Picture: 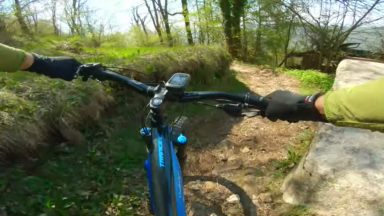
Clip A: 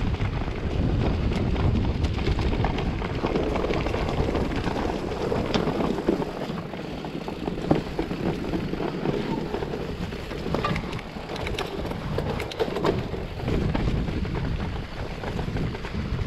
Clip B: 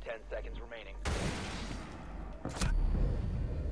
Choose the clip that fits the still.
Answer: A